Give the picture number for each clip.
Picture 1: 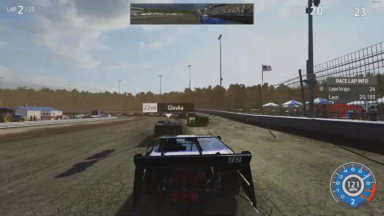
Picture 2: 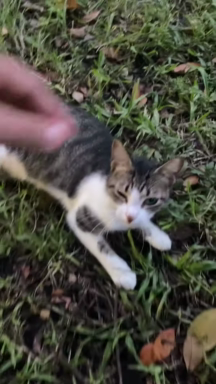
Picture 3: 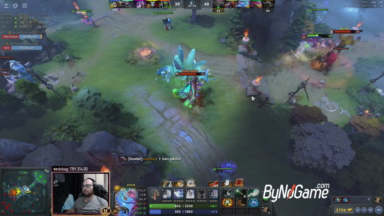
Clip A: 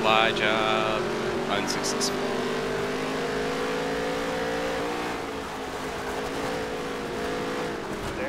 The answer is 1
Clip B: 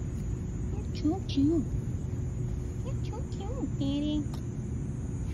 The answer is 2